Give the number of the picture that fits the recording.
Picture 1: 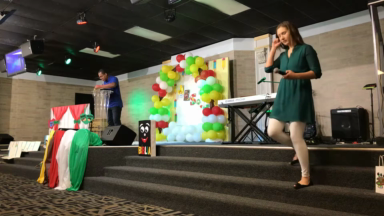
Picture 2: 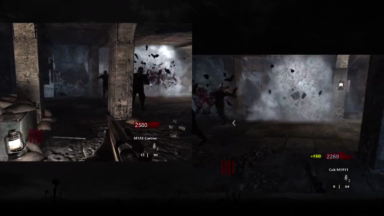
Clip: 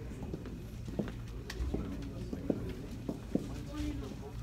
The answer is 1